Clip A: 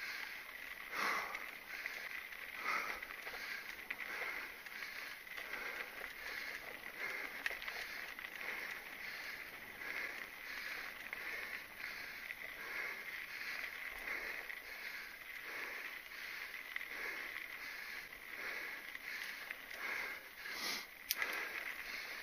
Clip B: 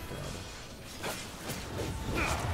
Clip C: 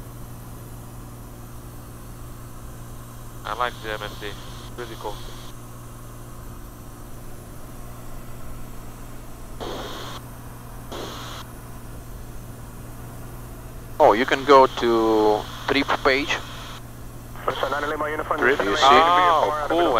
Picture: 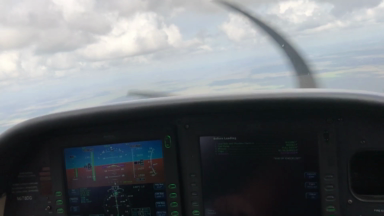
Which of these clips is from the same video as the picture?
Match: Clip C